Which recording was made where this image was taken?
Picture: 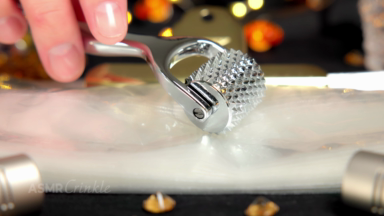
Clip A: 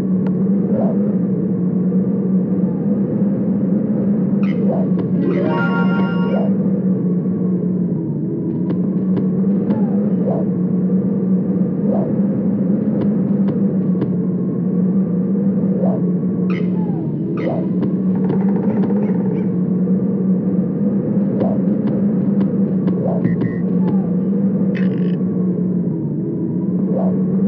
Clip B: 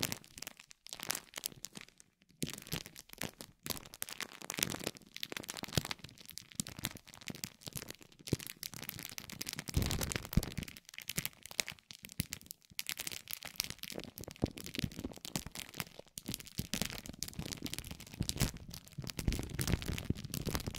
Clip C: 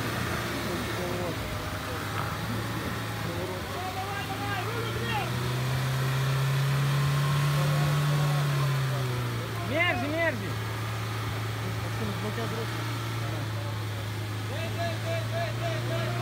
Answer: B